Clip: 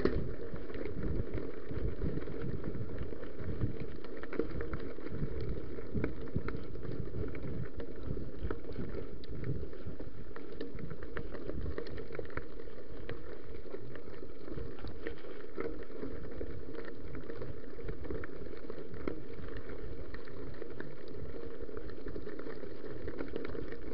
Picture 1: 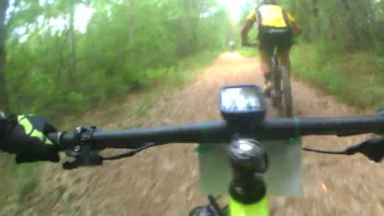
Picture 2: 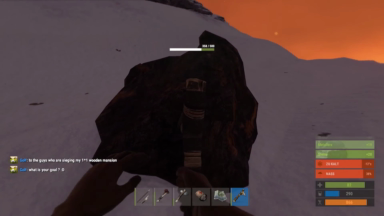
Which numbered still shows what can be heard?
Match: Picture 1